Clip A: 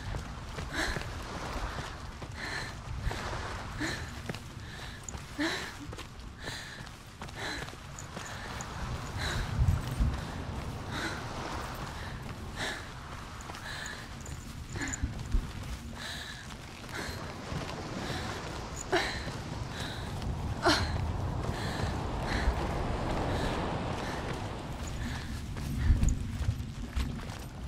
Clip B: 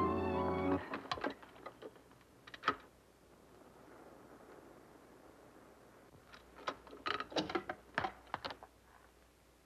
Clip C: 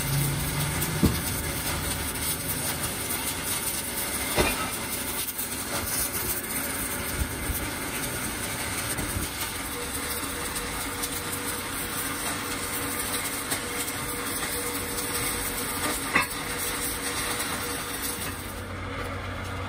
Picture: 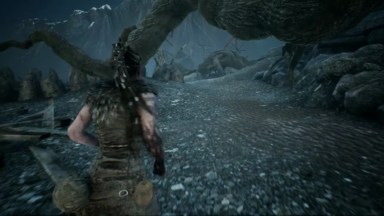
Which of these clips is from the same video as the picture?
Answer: A